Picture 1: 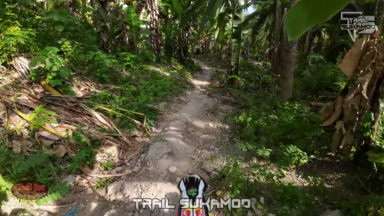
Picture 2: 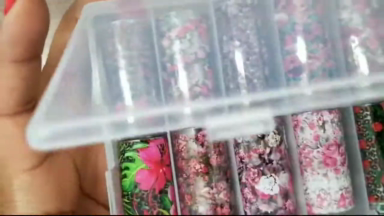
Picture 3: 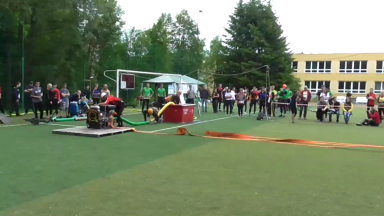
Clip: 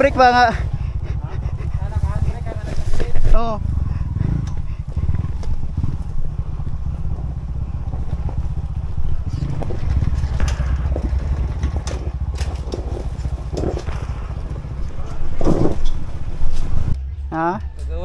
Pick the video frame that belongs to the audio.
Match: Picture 1